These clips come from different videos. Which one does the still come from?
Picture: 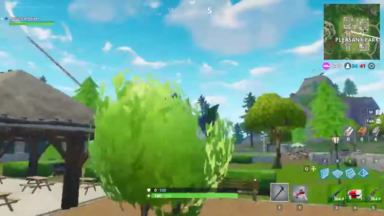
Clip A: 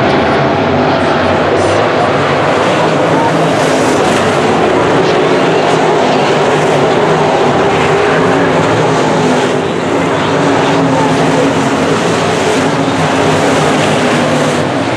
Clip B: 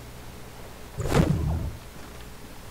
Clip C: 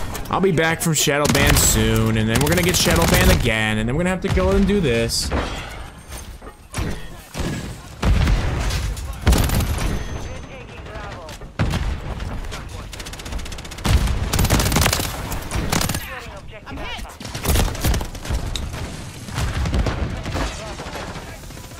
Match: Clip B